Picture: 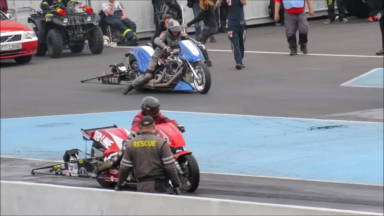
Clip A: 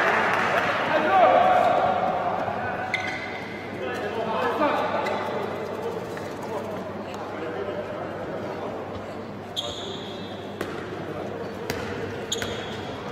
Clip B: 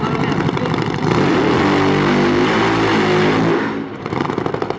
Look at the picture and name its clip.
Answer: B